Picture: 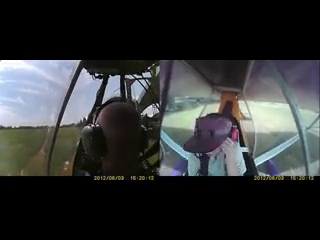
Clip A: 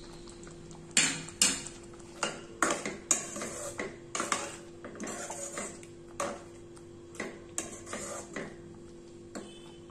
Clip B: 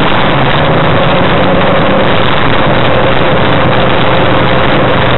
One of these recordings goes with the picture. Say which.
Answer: B